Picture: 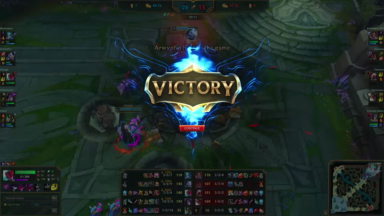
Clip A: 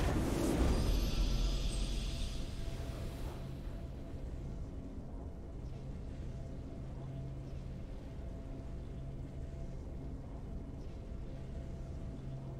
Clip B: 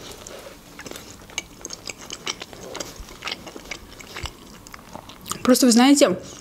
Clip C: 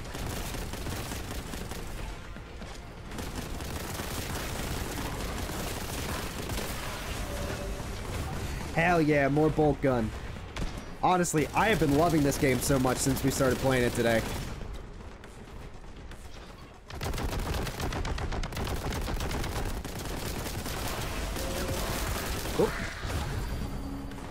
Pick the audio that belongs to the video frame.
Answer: A